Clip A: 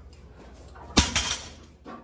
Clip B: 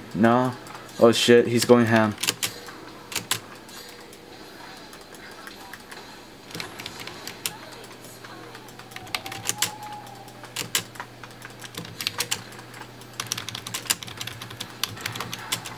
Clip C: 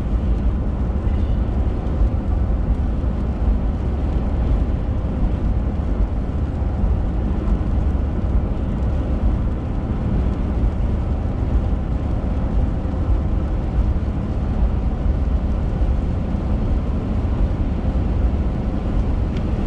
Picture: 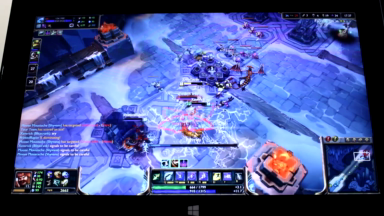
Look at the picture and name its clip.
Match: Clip B